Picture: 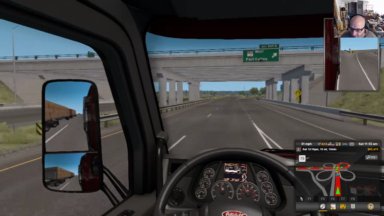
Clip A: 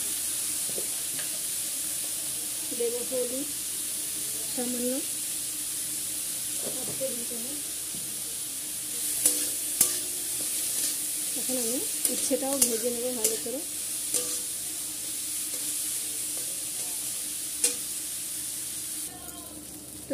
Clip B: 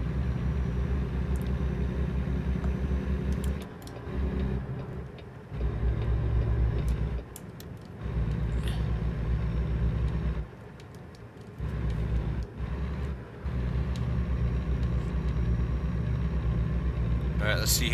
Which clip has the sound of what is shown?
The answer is B